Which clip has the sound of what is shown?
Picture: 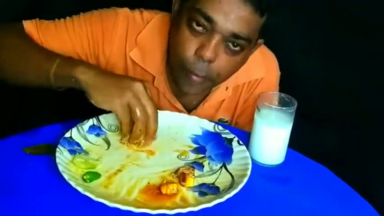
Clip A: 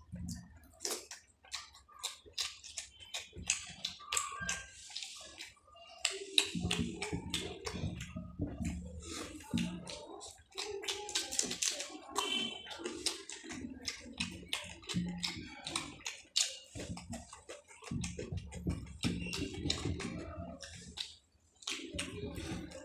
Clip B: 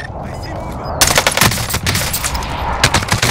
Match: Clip A